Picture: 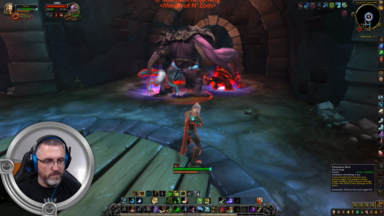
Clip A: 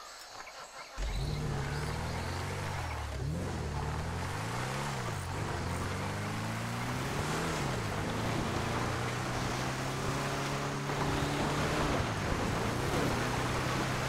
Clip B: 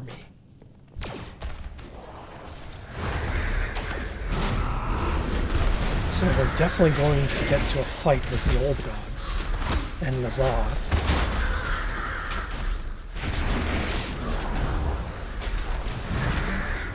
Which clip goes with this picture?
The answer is B